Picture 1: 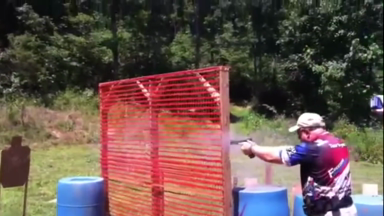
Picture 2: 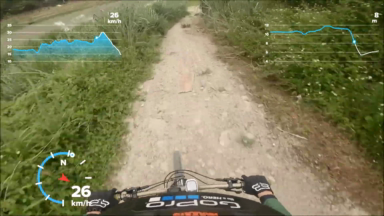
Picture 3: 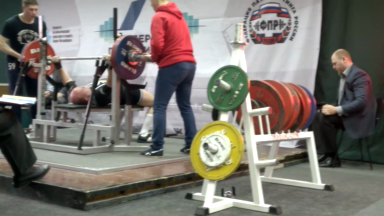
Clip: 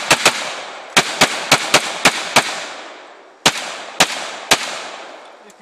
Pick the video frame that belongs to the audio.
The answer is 1